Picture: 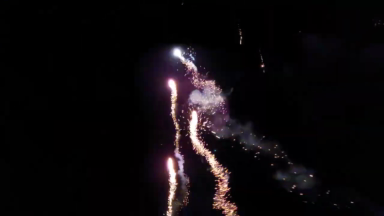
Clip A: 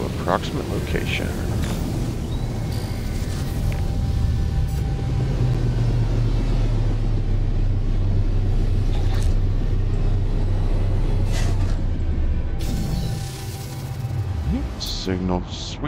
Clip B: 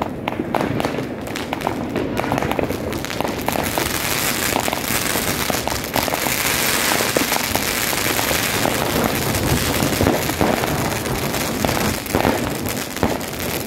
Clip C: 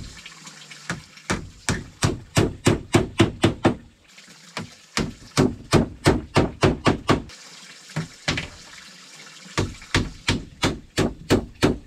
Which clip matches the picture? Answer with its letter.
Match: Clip B